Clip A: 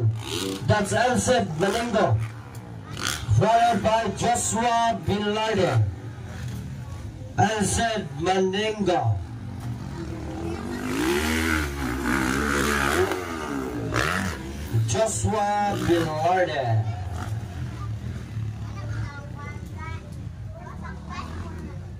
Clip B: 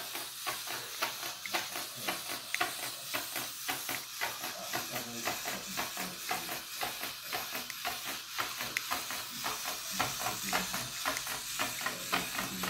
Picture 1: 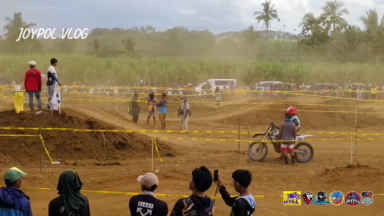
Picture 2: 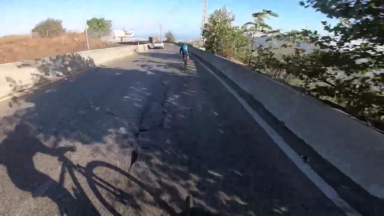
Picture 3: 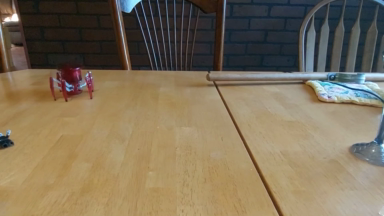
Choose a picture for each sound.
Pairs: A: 1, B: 3